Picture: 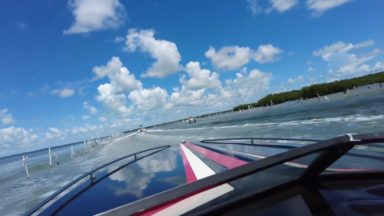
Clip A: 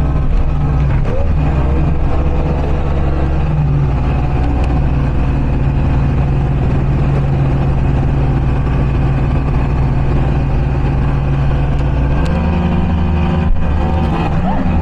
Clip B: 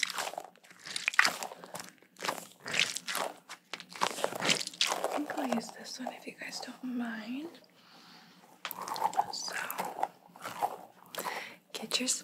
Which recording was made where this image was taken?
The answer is A